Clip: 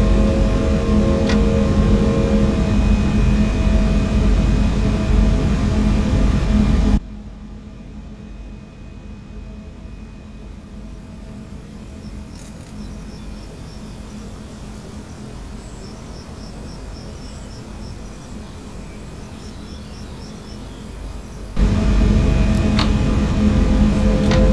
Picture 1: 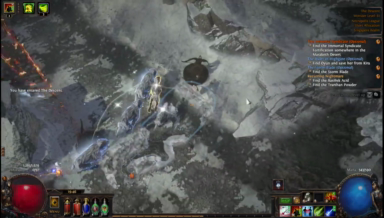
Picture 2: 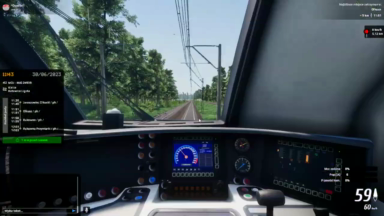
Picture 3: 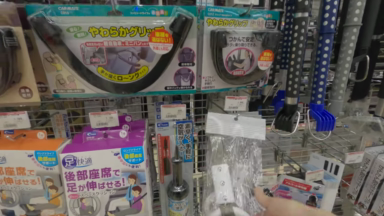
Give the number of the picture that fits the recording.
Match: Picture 2